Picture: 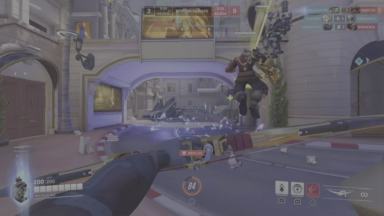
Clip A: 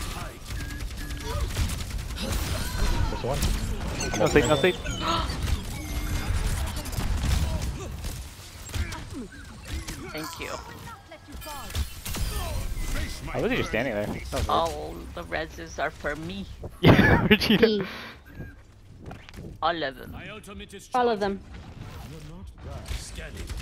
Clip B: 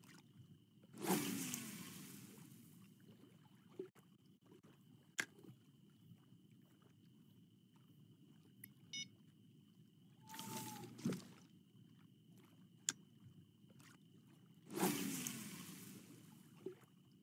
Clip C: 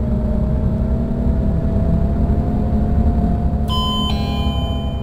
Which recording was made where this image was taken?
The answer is A